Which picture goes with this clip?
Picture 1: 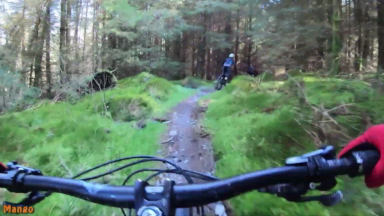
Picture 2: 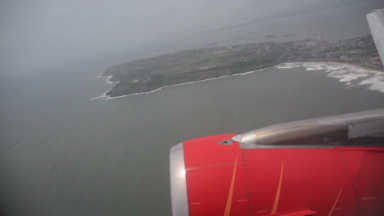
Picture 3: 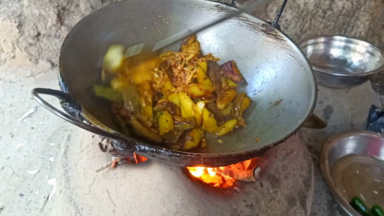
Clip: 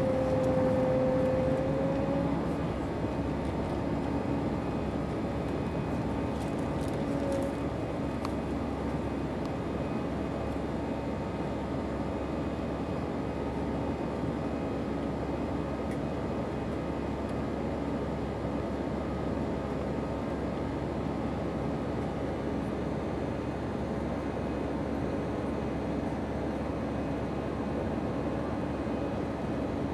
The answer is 2